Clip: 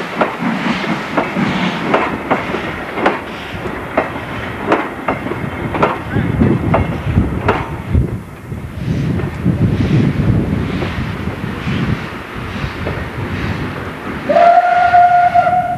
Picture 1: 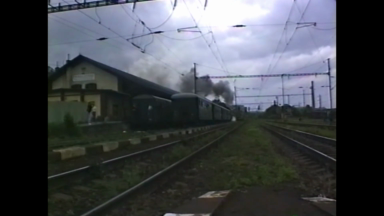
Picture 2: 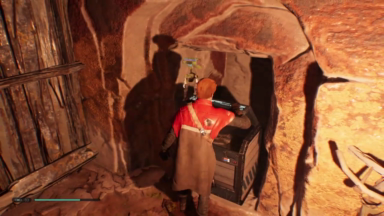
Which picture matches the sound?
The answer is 1